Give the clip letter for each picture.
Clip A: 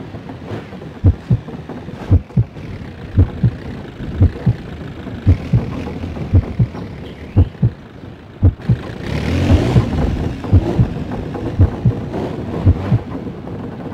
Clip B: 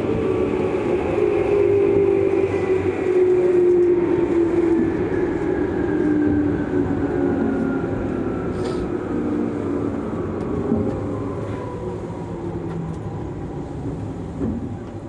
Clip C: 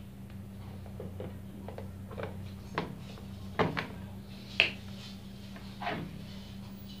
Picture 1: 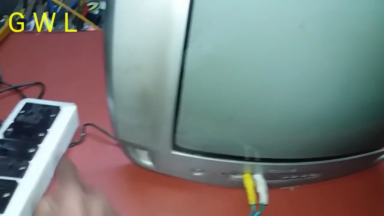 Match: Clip C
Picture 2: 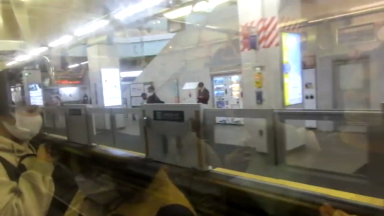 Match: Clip B